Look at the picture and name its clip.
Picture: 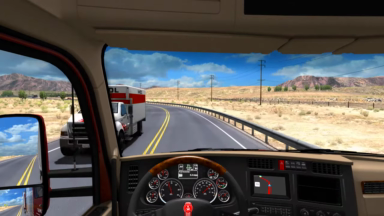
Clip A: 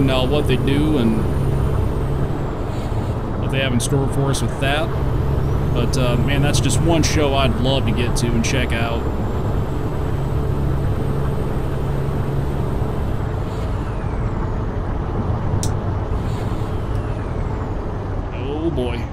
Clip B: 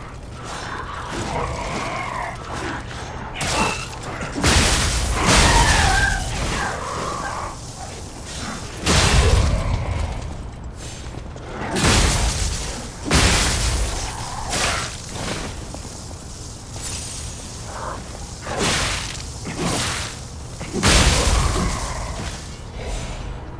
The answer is A